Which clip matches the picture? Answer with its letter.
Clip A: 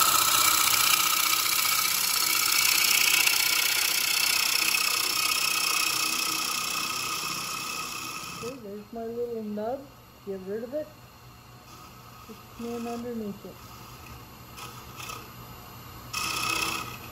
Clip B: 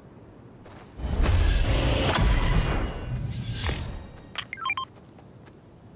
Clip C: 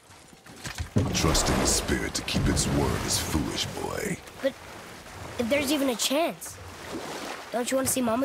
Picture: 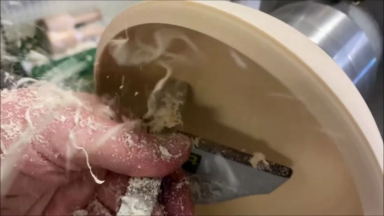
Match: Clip A